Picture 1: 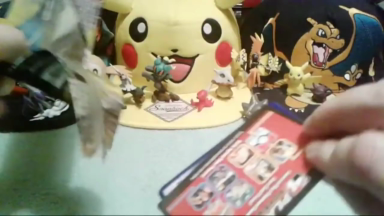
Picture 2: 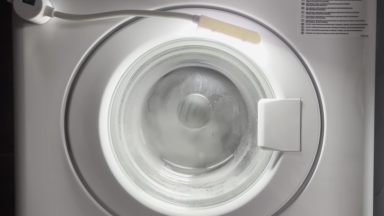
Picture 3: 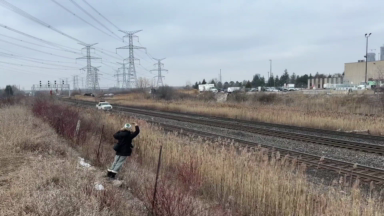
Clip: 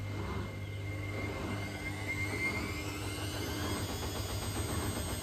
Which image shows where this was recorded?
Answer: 2